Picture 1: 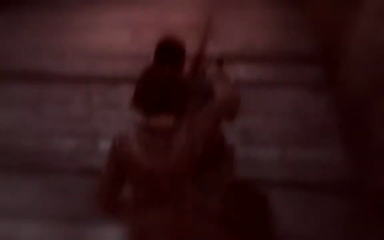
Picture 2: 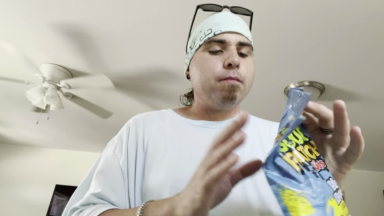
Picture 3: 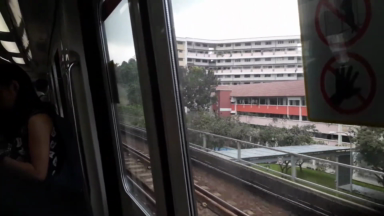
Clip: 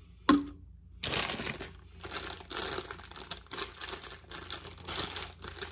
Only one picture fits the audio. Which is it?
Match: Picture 2